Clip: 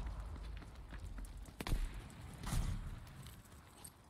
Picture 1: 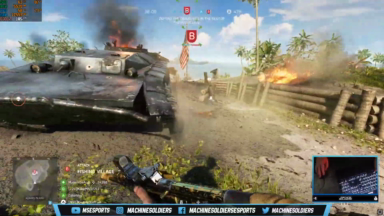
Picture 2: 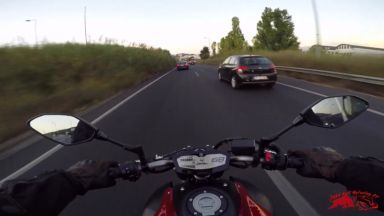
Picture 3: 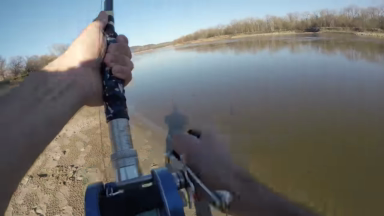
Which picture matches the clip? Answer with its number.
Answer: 1